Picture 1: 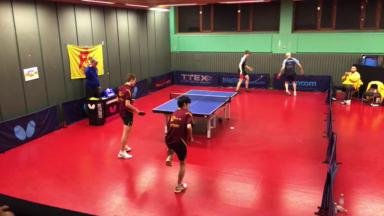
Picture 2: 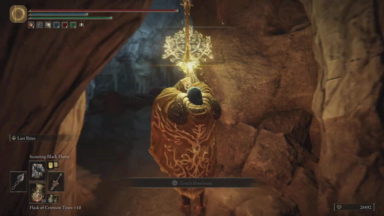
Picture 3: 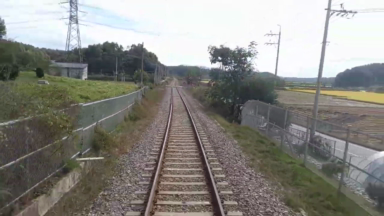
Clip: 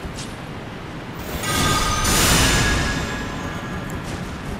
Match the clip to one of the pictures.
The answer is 2